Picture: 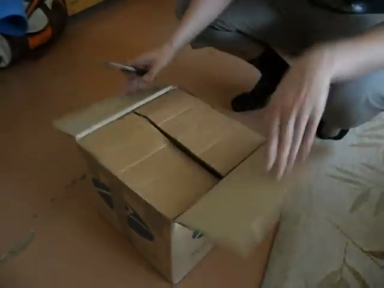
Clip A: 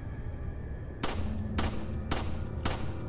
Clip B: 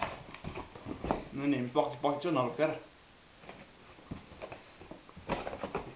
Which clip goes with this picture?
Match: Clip B